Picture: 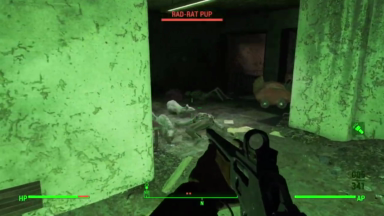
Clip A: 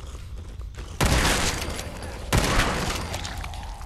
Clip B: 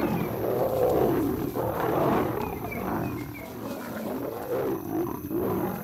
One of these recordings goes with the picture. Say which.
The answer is A